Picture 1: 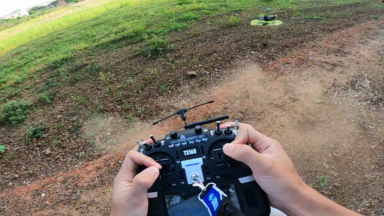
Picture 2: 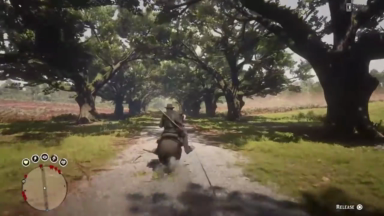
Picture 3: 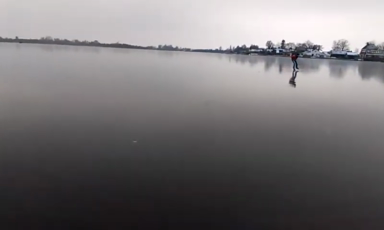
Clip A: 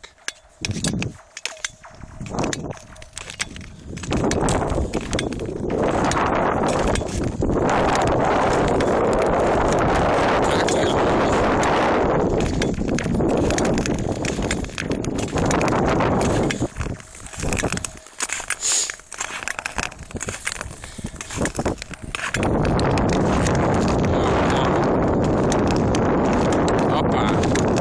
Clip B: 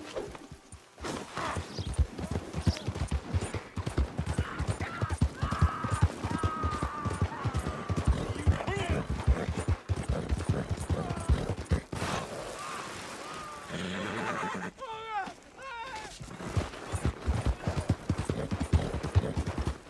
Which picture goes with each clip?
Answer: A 3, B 2